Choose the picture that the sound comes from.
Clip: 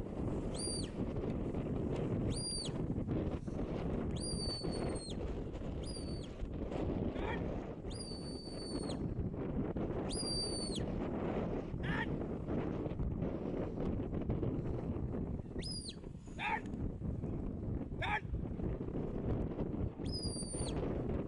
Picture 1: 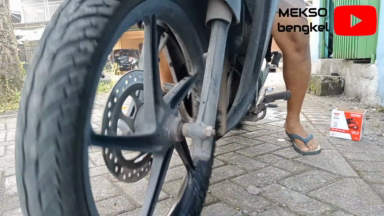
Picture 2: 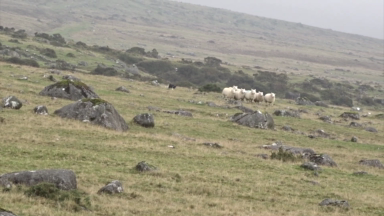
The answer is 2